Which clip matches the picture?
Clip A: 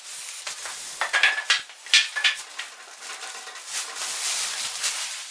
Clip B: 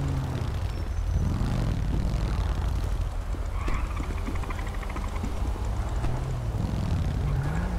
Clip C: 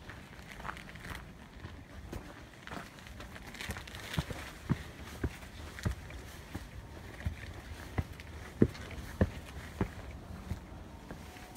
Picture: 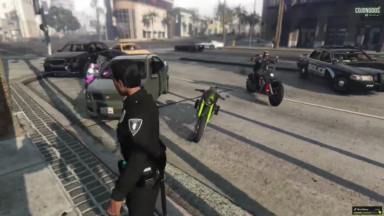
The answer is B